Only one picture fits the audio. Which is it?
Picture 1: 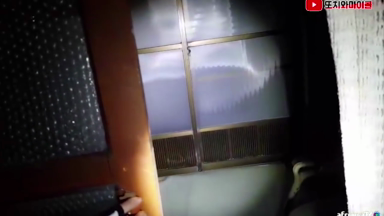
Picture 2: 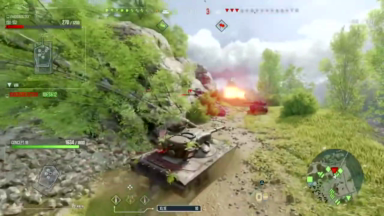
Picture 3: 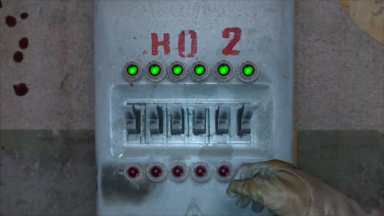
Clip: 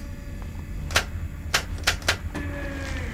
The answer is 3